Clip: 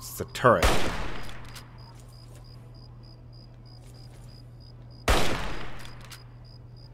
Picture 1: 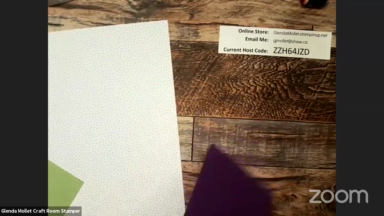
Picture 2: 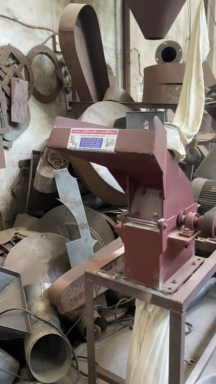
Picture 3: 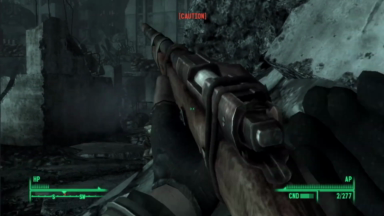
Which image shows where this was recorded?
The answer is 3